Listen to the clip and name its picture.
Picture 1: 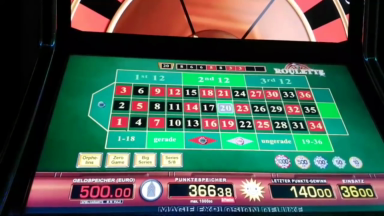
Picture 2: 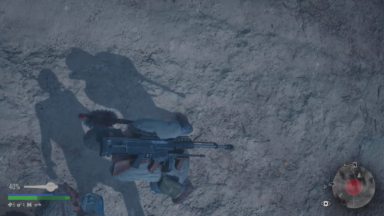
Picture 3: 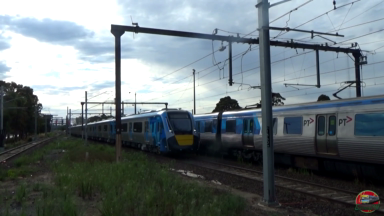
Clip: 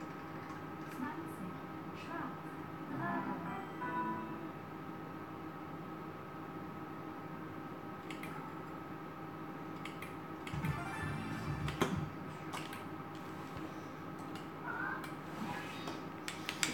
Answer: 1